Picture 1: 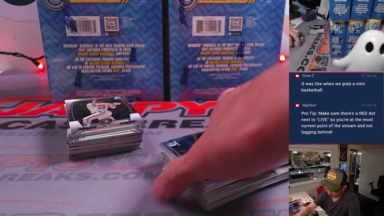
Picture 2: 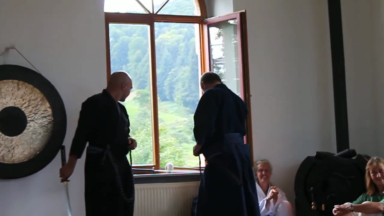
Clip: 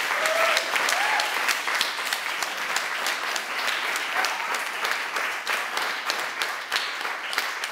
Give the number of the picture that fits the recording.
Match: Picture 2